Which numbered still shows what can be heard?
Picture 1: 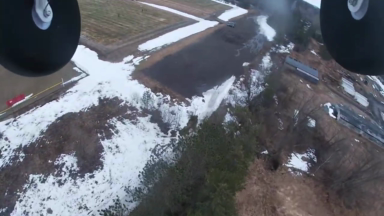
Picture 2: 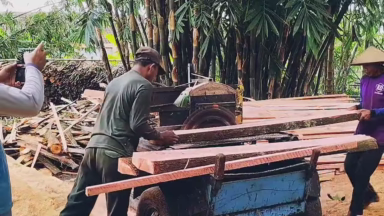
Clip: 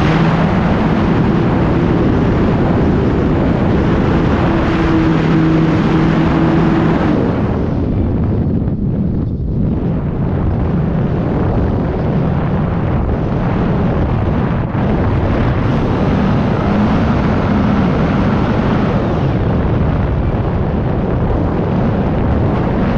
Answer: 1